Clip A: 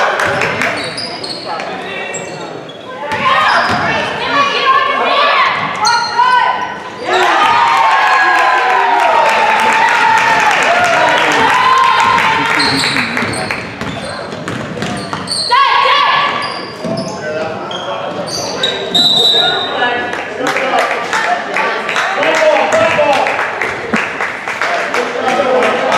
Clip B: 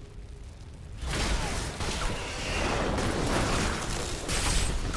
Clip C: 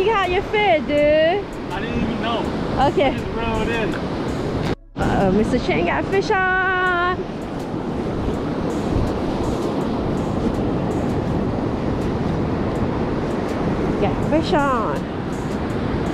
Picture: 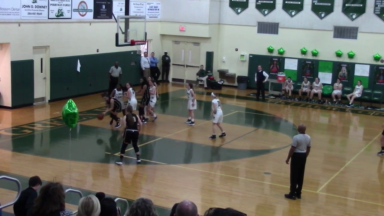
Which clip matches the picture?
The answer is A